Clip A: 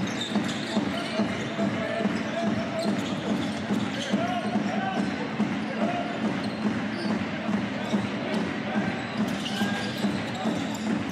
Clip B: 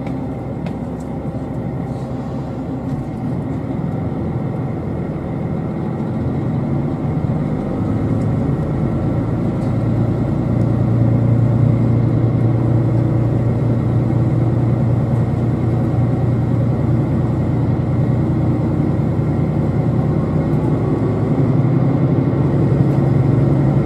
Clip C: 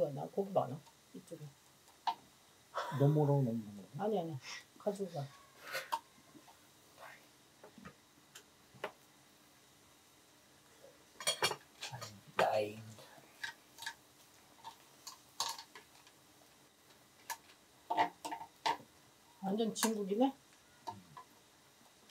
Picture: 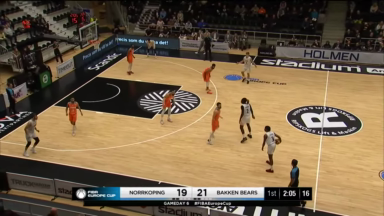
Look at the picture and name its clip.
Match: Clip A